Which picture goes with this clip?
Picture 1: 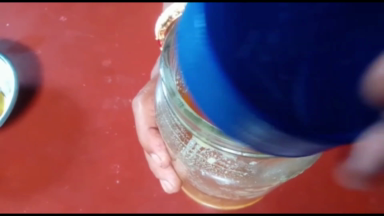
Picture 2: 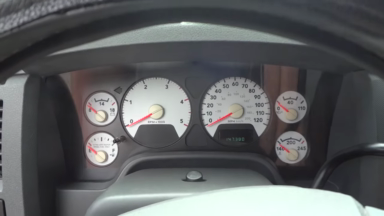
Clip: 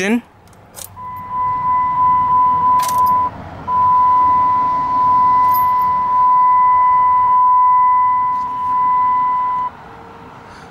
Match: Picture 2